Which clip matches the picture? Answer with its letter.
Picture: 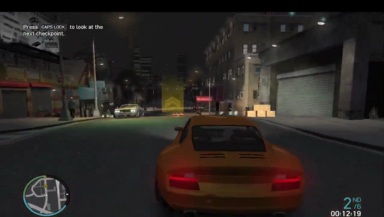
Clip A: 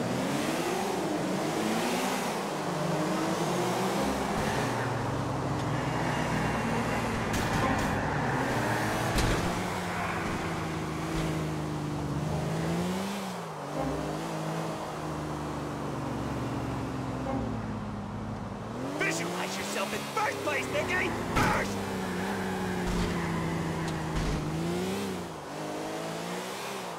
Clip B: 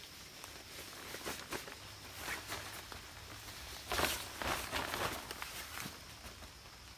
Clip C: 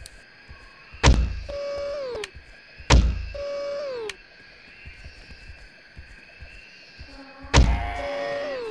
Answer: A